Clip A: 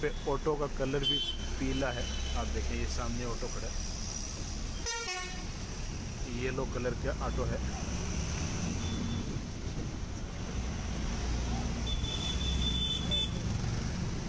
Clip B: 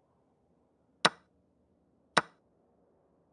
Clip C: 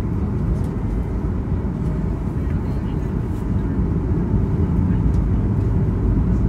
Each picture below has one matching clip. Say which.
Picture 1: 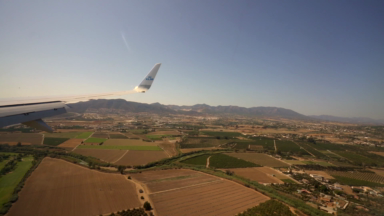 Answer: C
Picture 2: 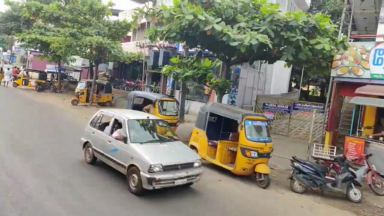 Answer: A